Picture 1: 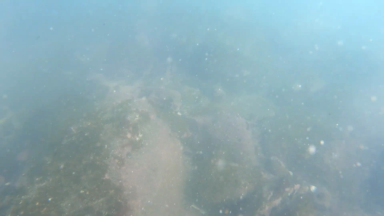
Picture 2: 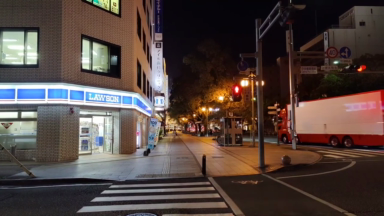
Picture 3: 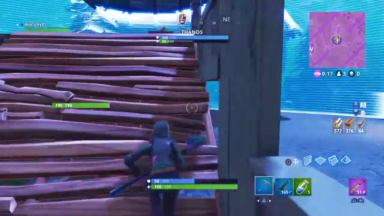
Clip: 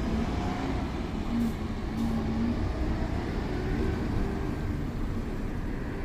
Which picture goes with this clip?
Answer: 2